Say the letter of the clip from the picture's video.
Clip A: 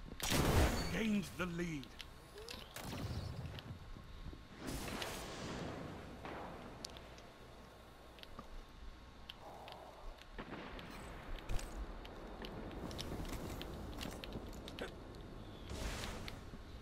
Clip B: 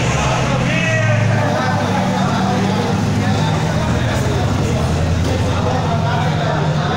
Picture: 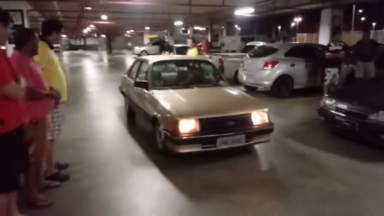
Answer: B